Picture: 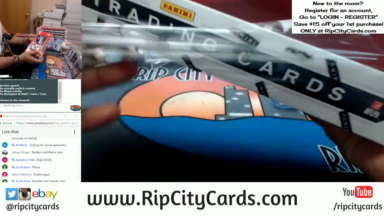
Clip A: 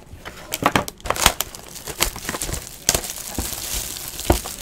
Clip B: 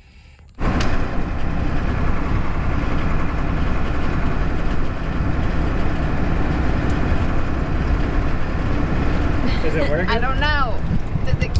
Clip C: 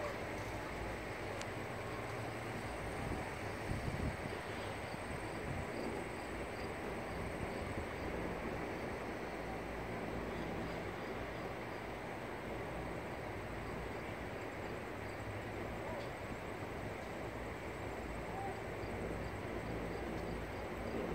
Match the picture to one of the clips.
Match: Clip A